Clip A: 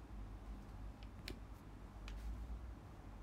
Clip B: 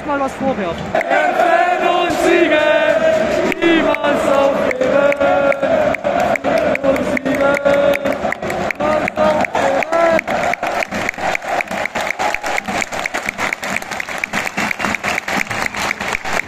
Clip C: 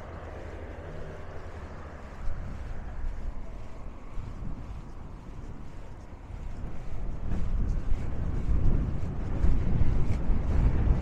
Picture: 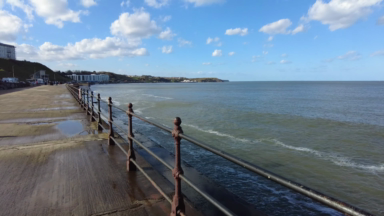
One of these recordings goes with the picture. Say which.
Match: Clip C